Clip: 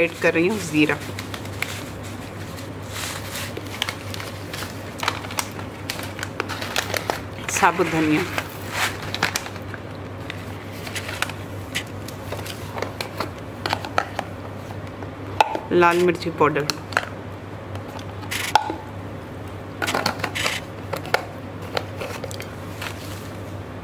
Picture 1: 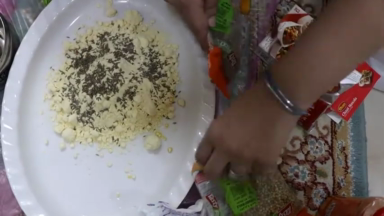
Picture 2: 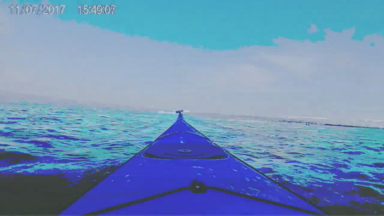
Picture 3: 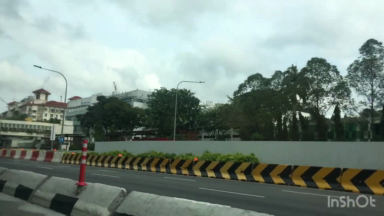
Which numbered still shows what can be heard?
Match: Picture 1